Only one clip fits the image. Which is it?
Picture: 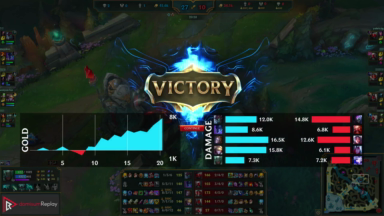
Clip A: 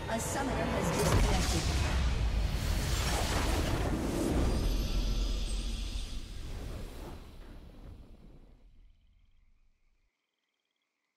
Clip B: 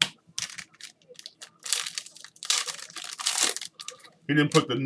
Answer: A